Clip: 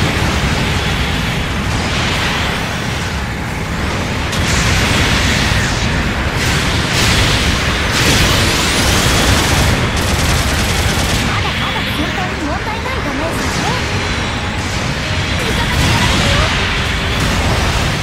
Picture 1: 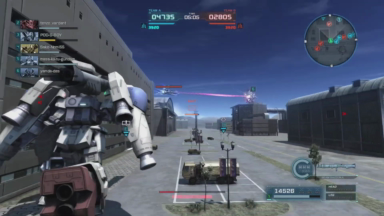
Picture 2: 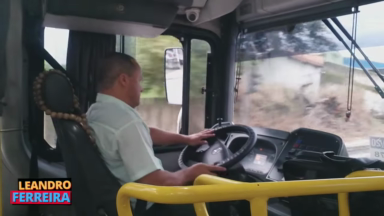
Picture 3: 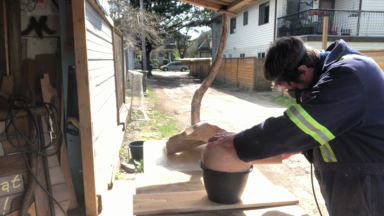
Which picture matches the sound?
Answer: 1